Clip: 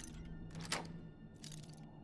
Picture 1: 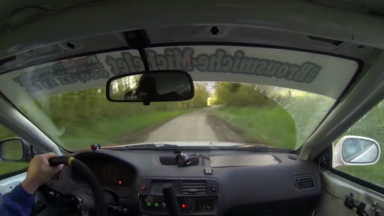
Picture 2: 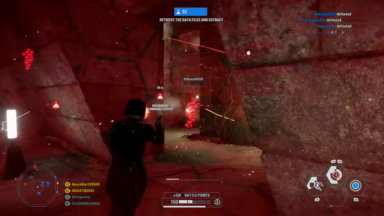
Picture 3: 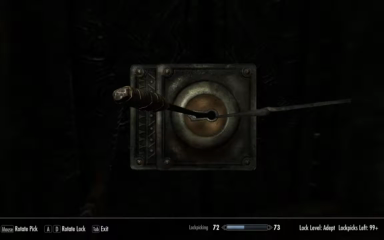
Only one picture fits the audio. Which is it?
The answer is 3